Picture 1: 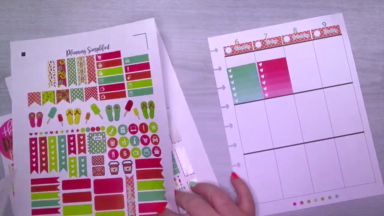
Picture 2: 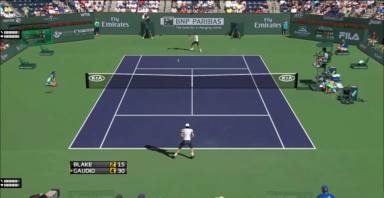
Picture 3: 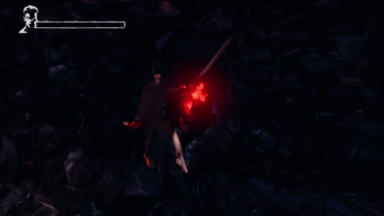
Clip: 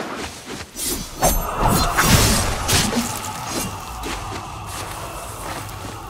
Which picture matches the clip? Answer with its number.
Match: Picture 3